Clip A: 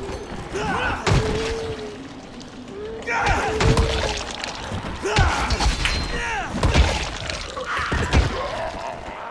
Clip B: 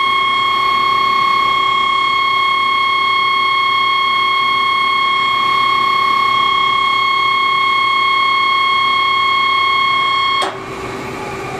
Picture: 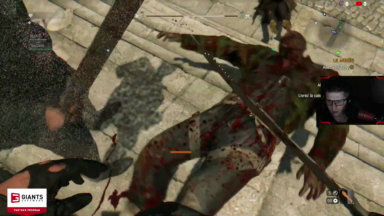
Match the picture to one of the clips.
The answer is A